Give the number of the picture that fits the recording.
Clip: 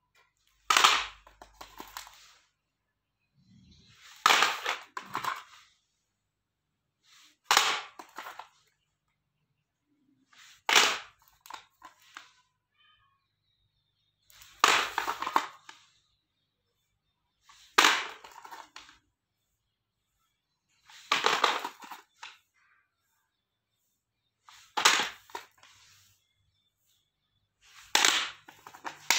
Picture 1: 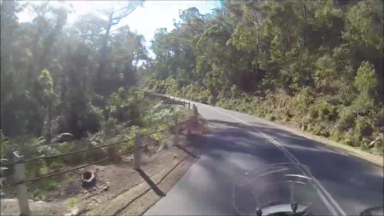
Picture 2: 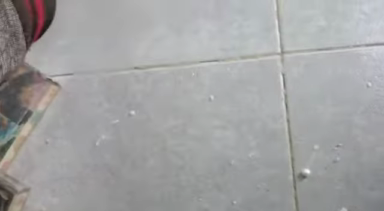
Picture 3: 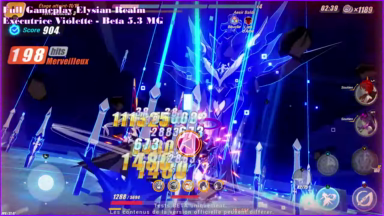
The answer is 2